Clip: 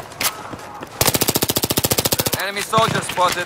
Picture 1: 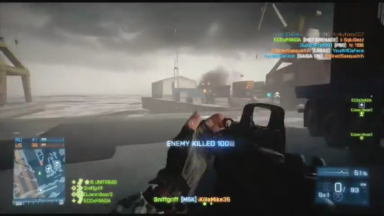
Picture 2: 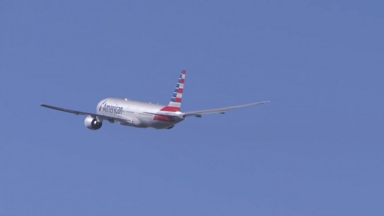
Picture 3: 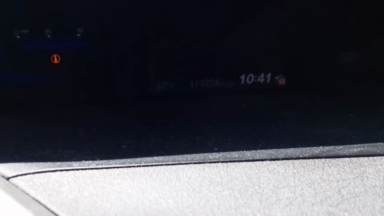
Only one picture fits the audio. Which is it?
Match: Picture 1